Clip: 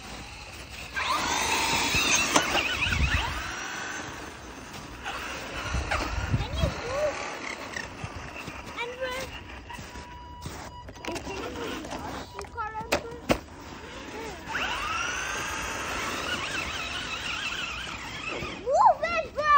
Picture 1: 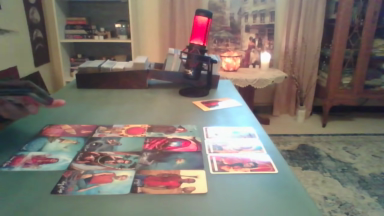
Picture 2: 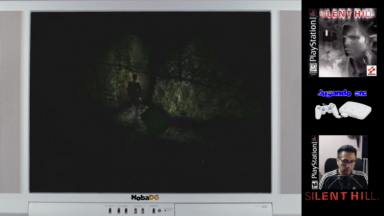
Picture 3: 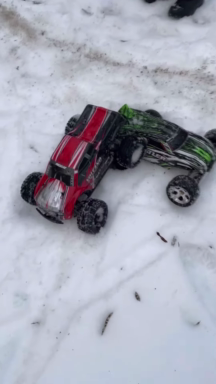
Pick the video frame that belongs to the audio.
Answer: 3